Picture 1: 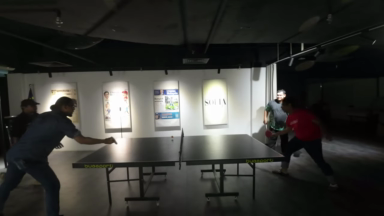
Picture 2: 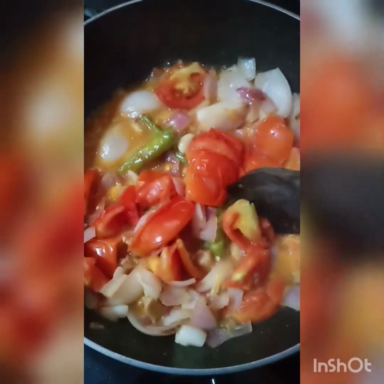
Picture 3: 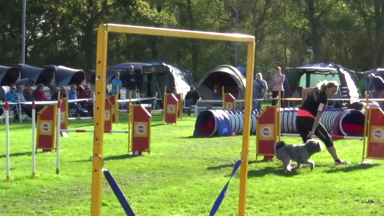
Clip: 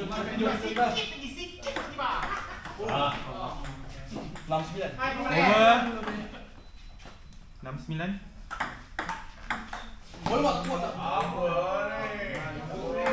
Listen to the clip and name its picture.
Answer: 1